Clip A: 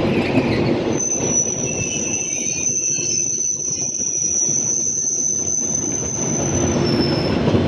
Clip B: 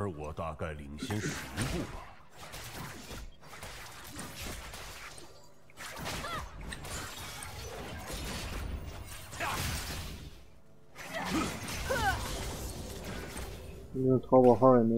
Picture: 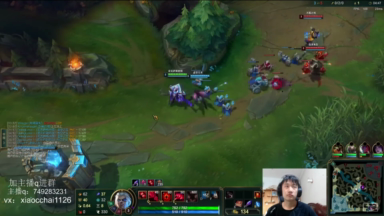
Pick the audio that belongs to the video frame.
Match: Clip B